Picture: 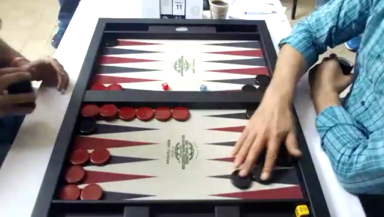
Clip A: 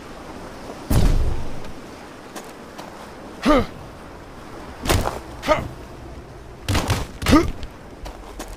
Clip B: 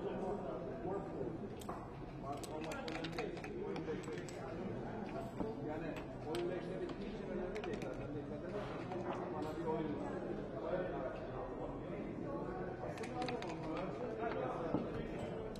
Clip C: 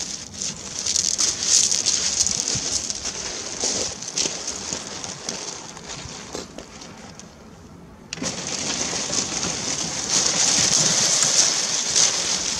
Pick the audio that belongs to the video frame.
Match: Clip B